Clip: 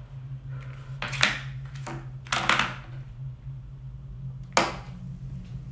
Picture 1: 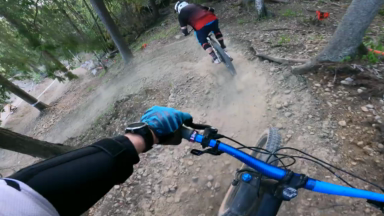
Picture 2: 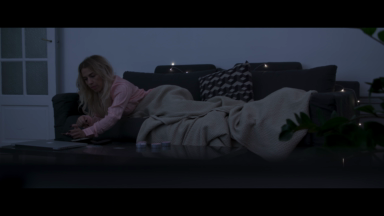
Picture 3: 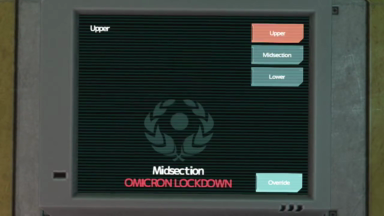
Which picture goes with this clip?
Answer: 2